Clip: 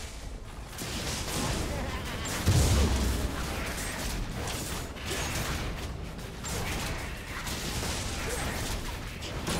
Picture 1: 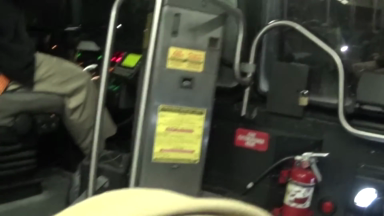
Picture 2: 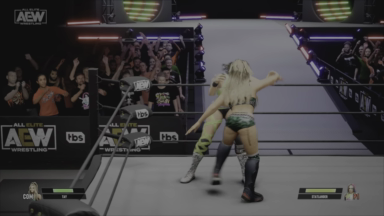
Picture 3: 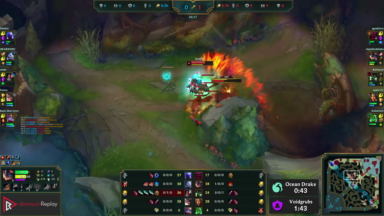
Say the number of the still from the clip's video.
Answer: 3